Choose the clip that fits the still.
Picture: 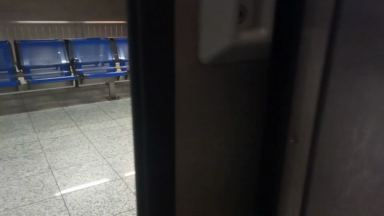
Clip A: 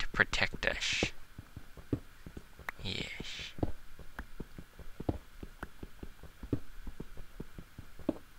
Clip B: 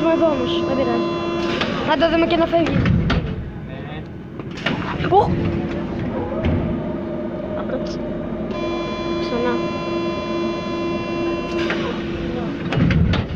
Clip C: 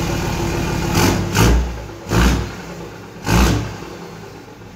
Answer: B